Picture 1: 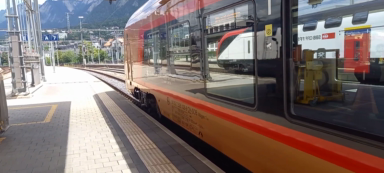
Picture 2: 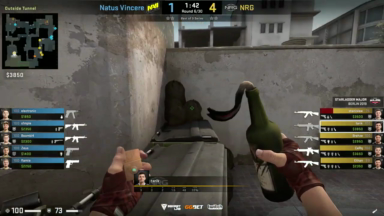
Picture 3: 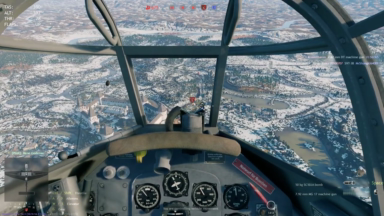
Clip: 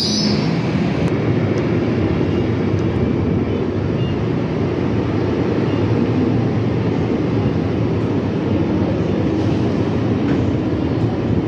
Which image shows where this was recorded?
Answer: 1